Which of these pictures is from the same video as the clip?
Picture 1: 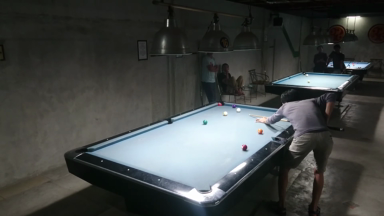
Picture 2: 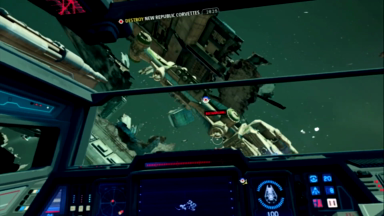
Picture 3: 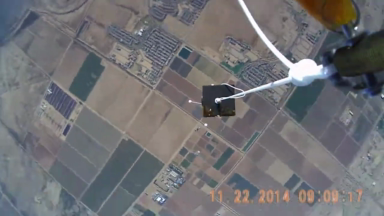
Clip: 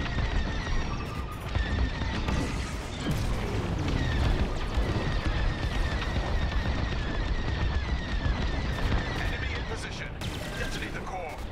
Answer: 2